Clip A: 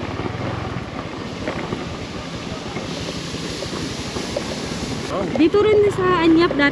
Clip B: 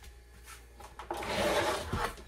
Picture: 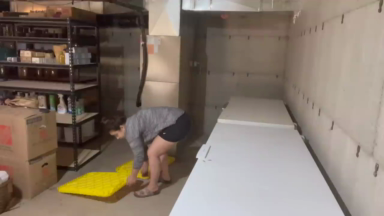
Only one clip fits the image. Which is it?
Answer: B